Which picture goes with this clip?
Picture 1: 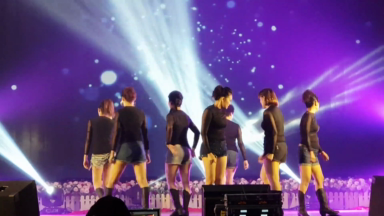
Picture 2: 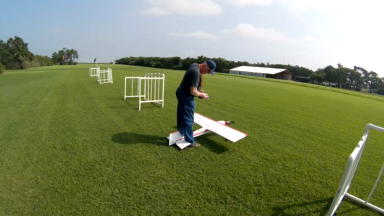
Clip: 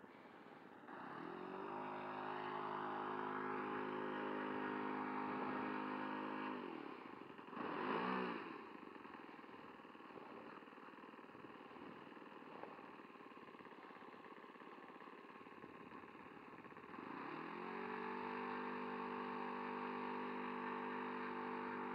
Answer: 2